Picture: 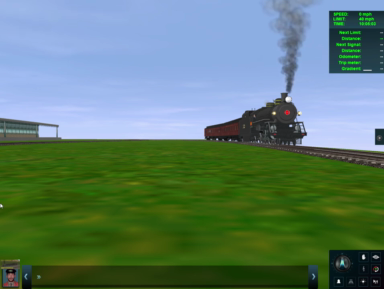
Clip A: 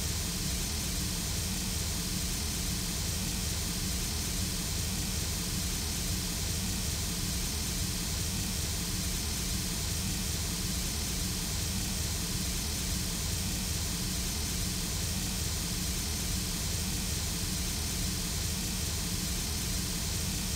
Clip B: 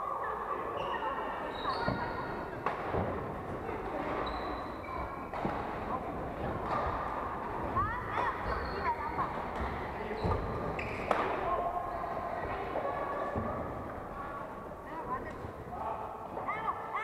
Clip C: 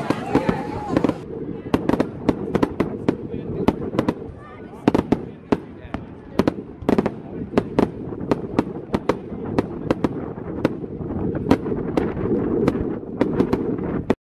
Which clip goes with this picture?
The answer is A